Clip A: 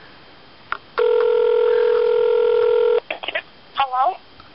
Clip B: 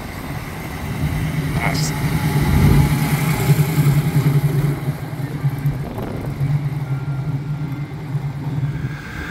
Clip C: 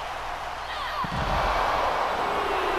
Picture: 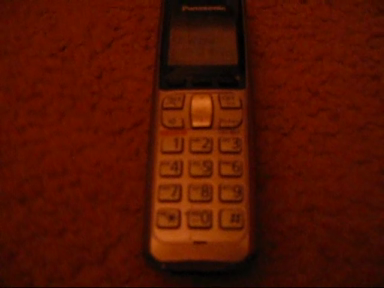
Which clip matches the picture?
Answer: A